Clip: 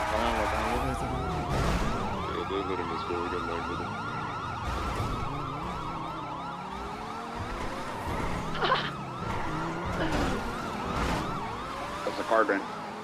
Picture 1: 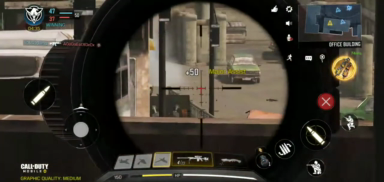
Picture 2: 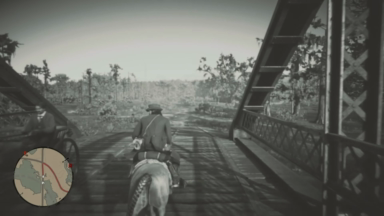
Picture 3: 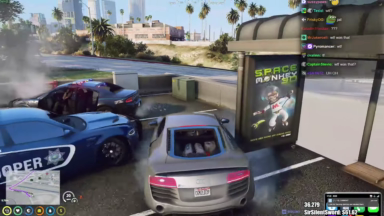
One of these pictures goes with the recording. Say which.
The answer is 3